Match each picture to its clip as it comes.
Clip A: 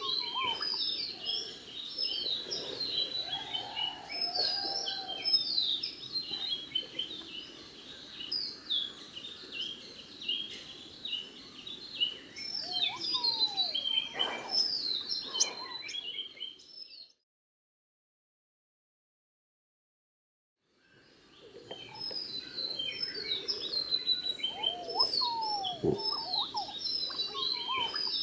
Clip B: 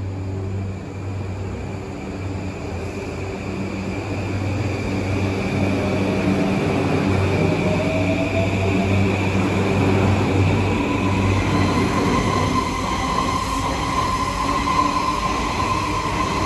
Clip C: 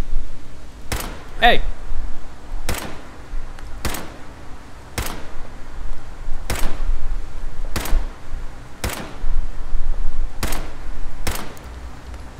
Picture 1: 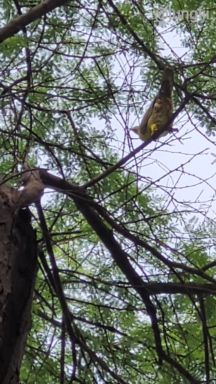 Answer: A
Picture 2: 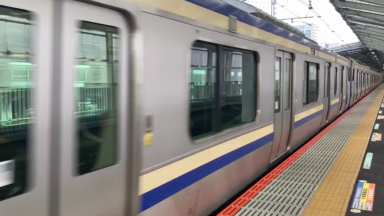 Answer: B